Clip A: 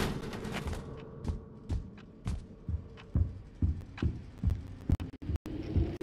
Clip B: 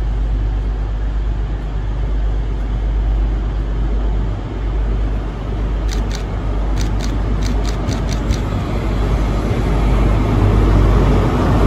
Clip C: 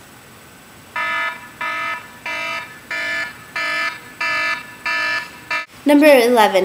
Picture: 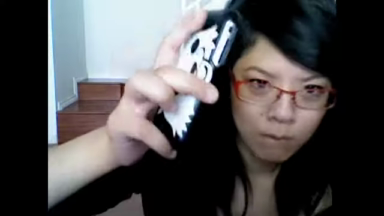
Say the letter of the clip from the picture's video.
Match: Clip C